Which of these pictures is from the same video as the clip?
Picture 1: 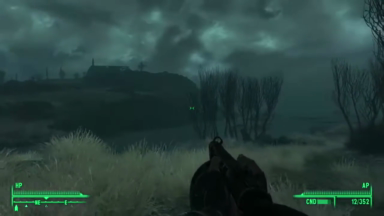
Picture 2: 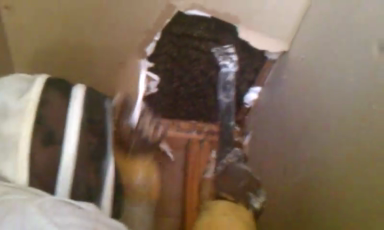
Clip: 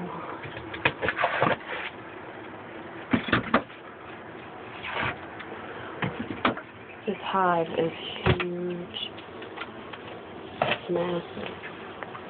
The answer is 2